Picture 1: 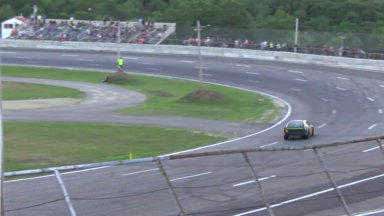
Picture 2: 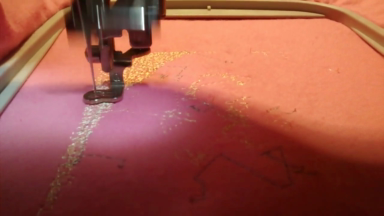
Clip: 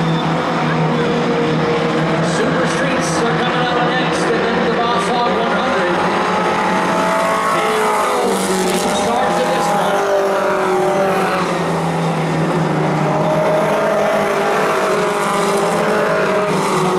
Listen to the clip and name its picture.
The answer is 1